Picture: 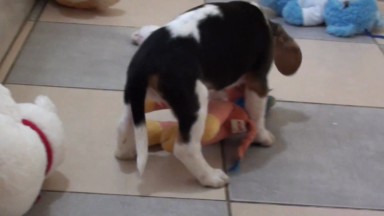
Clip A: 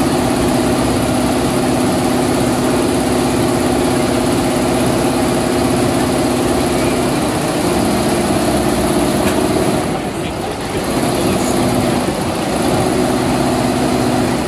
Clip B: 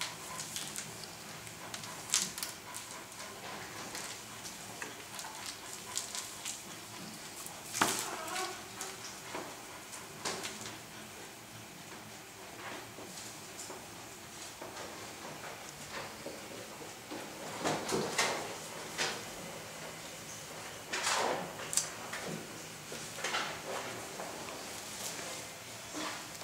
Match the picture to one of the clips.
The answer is B